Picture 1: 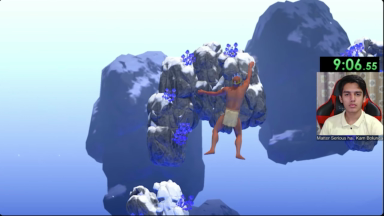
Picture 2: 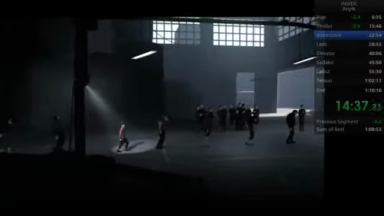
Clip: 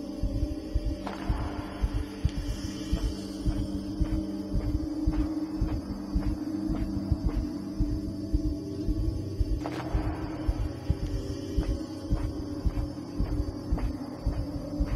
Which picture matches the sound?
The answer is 2